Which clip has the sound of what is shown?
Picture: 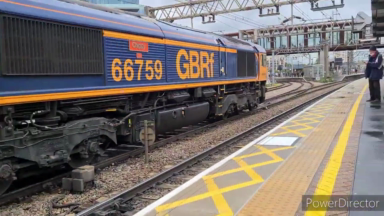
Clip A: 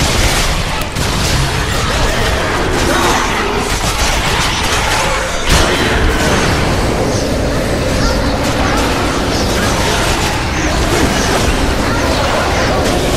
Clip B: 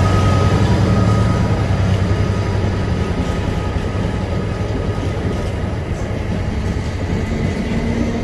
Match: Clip B